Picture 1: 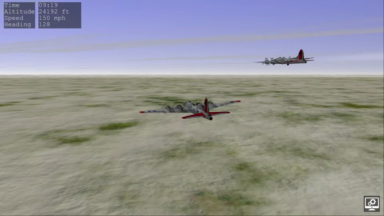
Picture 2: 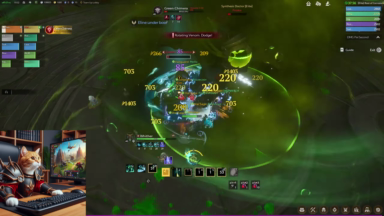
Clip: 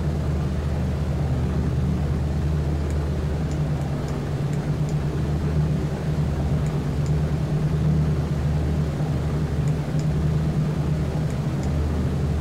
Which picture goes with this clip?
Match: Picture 1